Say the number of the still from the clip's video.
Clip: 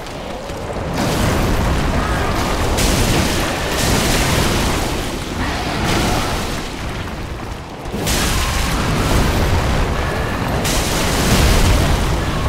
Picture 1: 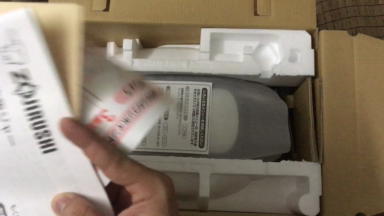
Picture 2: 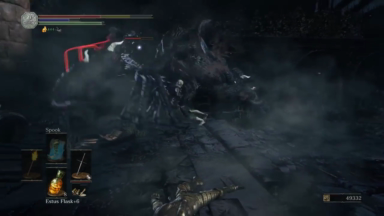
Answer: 2